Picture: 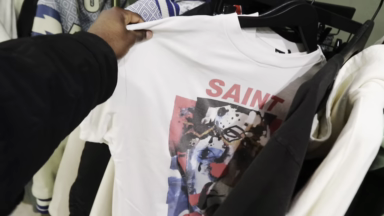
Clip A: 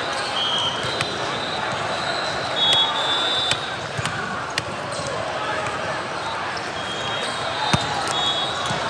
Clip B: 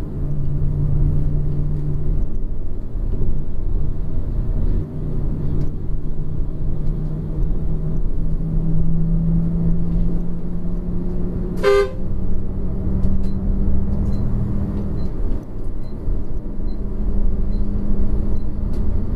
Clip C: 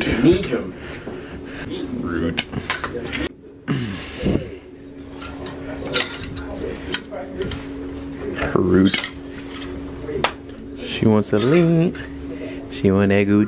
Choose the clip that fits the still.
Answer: C